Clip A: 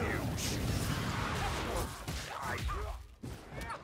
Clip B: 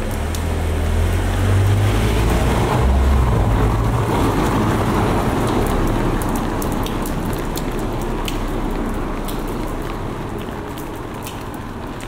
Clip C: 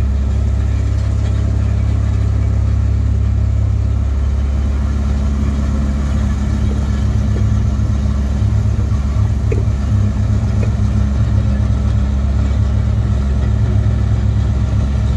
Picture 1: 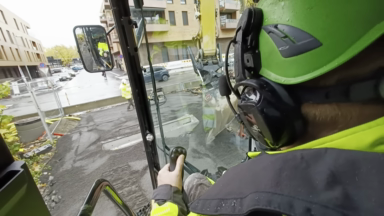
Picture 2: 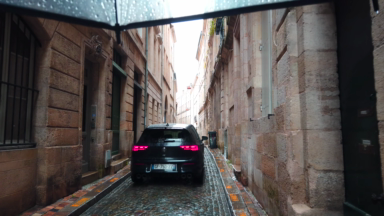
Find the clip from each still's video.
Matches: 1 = C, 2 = B